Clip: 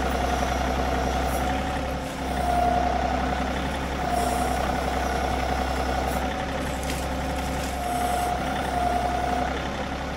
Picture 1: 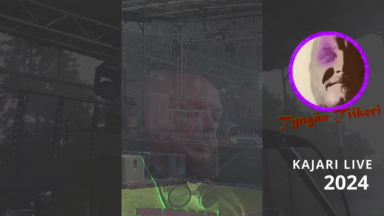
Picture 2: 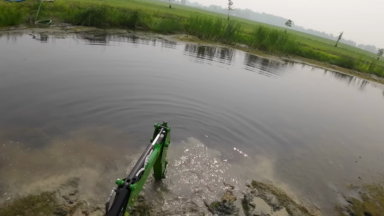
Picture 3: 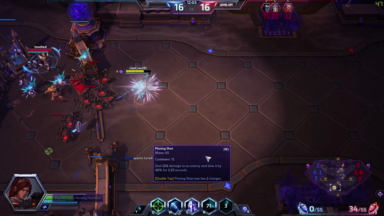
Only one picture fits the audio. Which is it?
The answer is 2